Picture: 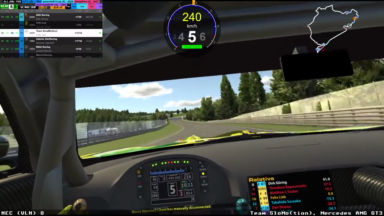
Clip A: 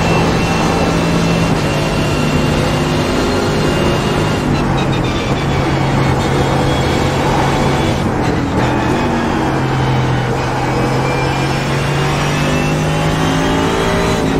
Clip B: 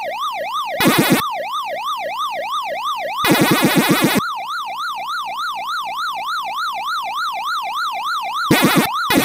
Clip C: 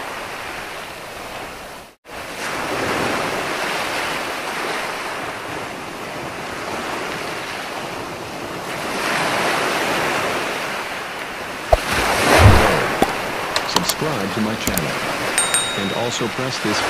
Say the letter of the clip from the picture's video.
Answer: A